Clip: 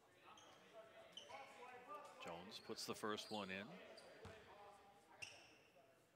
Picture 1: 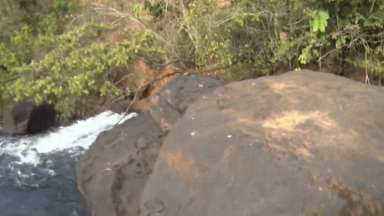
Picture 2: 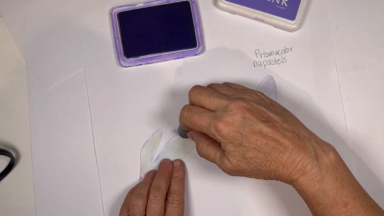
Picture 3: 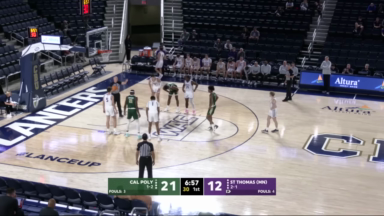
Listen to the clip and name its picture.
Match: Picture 3